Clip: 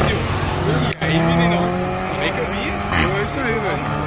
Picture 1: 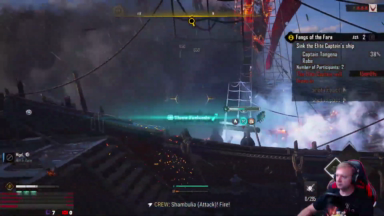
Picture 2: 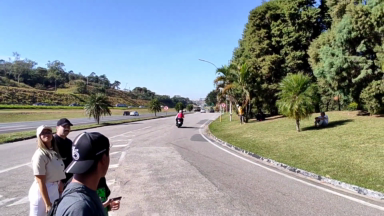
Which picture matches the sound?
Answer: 2